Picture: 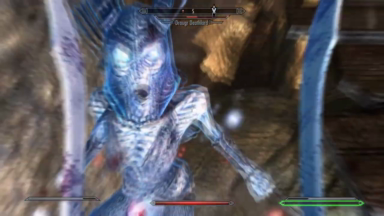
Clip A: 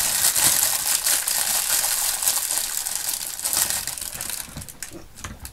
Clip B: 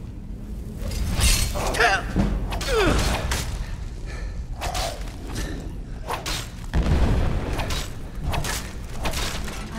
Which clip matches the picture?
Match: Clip B